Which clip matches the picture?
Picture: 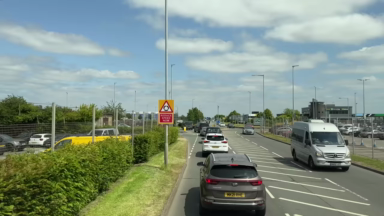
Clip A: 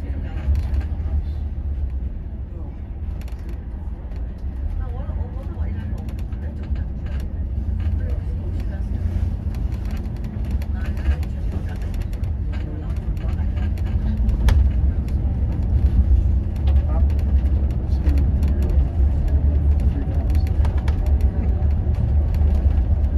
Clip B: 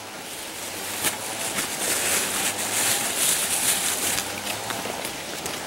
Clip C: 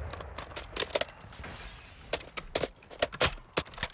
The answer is A